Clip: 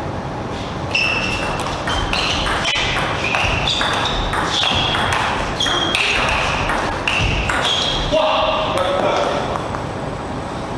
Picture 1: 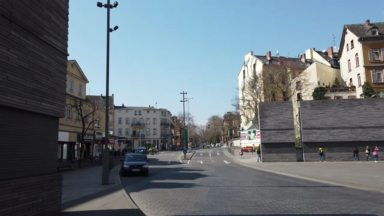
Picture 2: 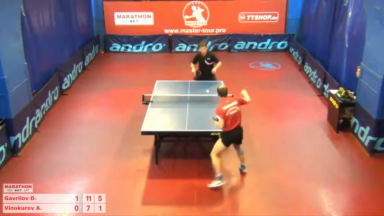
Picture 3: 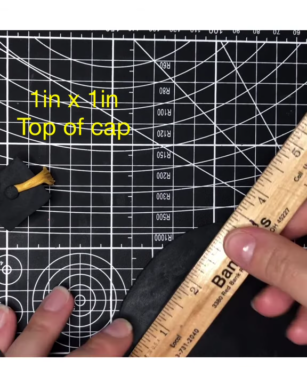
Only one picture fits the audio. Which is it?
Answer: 2